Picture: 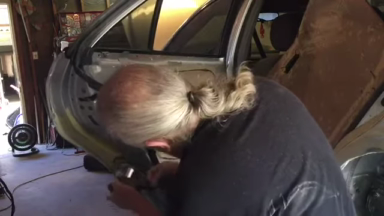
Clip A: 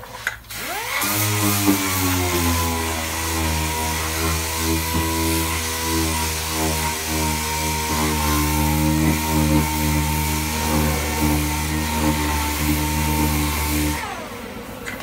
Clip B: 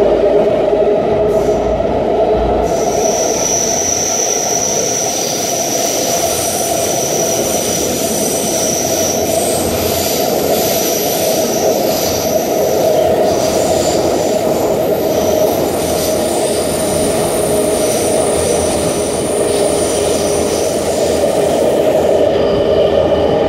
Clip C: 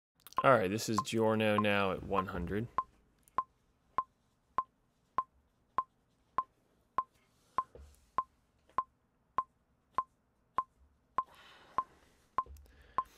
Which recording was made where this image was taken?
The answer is A